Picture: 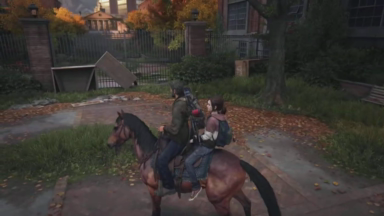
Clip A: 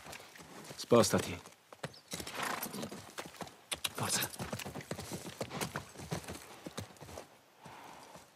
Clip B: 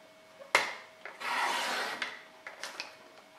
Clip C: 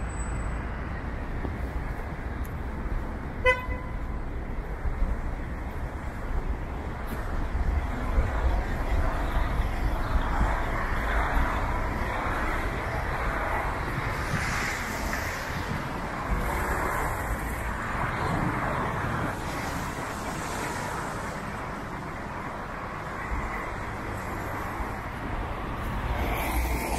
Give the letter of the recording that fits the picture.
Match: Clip A